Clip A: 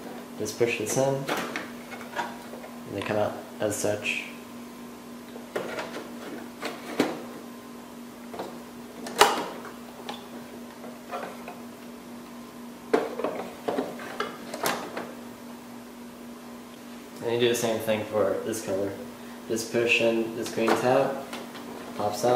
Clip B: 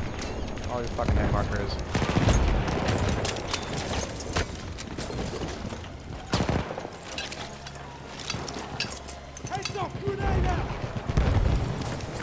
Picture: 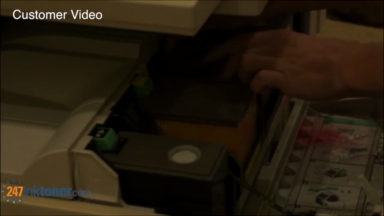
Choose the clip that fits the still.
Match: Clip A